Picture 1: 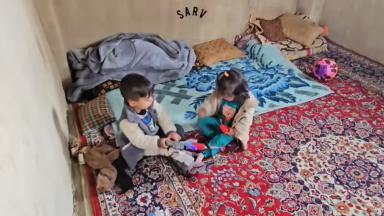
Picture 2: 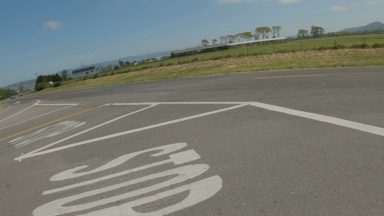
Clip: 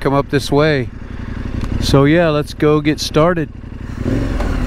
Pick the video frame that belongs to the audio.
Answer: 2